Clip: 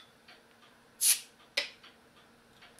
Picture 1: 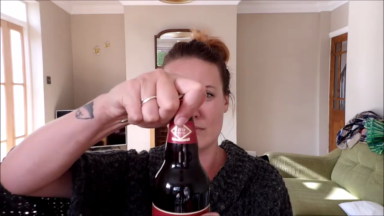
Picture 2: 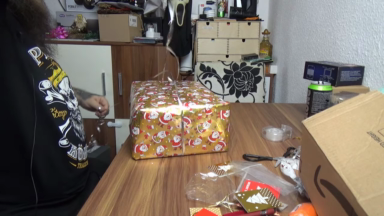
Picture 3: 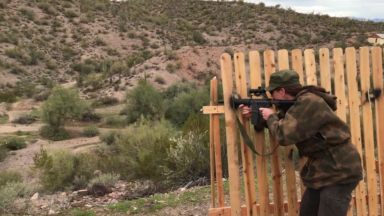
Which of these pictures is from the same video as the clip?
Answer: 1